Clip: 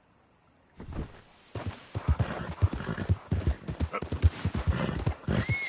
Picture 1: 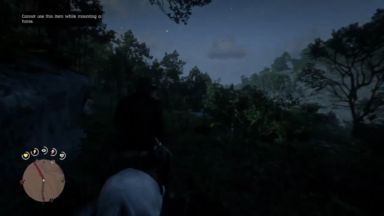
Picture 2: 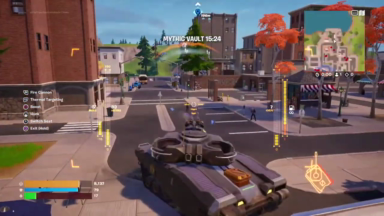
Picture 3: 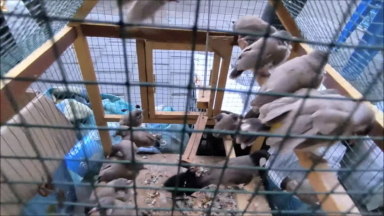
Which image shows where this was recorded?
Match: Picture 1